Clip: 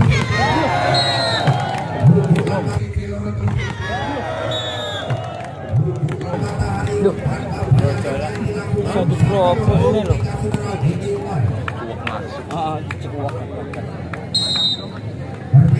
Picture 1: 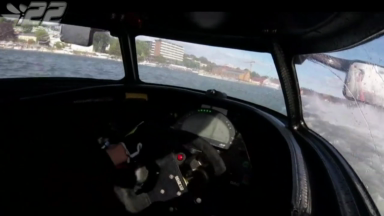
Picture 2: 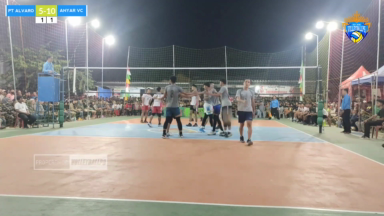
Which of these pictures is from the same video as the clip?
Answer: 2